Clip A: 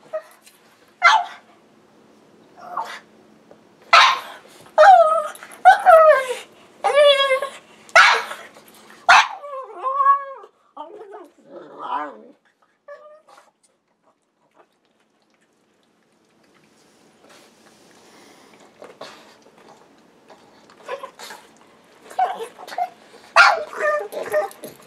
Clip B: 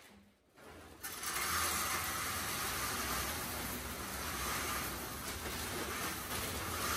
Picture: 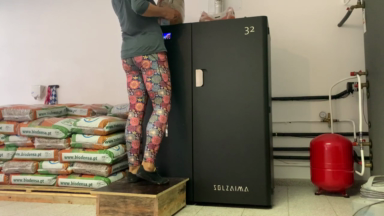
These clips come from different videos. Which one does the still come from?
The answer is B